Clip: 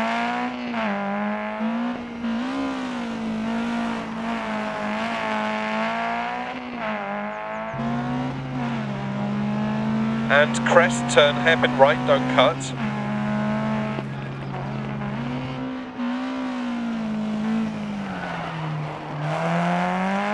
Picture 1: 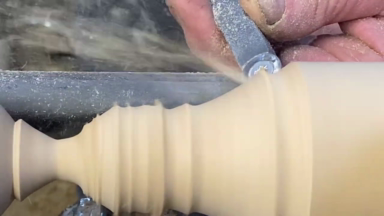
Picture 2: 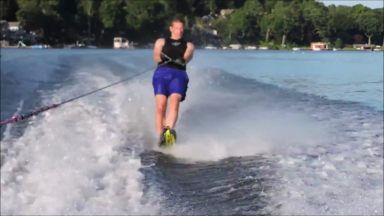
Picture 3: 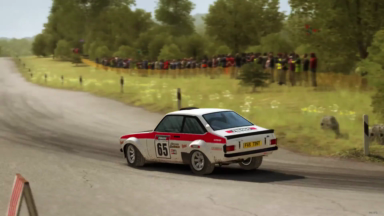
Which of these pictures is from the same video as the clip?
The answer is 3